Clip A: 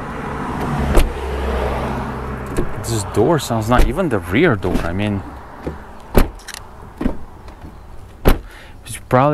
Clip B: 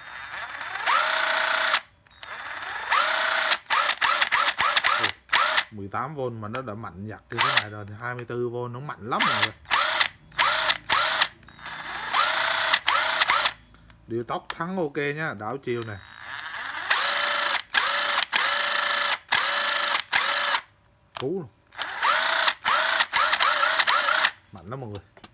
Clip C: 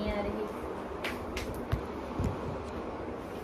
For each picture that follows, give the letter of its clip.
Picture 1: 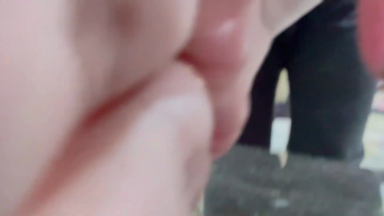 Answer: C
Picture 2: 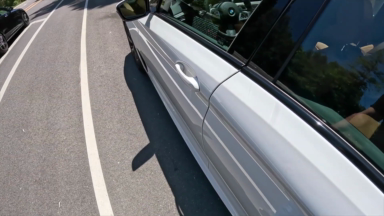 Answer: A